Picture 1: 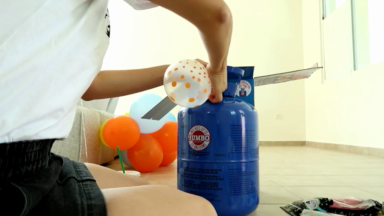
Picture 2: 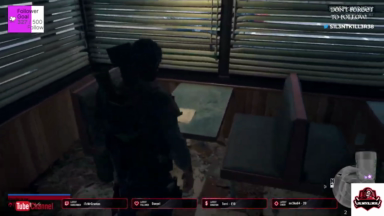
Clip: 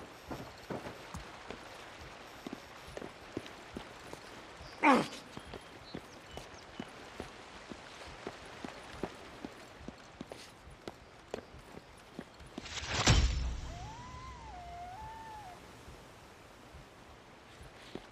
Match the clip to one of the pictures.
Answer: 2